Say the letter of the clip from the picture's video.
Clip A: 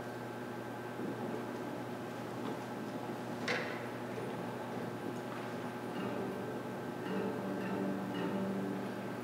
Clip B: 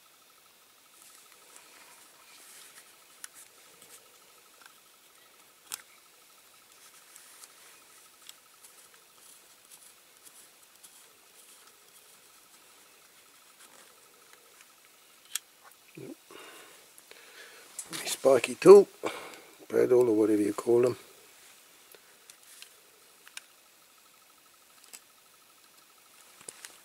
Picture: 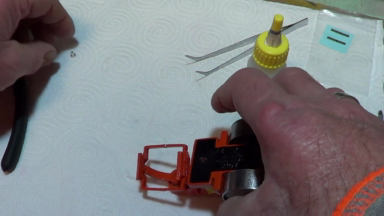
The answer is B